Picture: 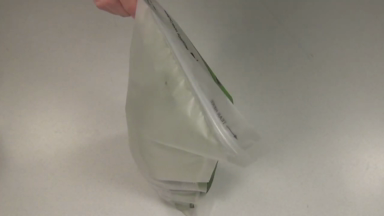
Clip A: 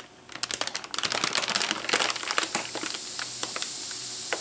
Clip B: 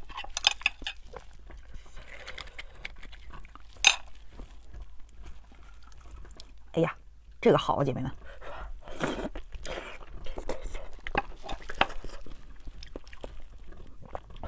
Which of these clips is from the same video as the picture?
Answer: A